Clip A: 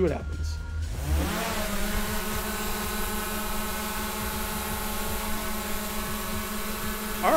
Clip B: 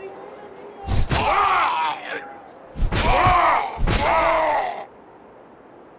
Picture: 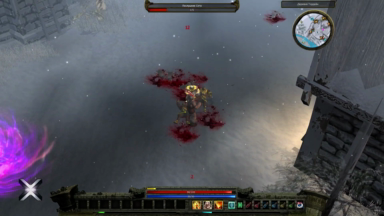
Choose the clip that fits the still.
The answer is B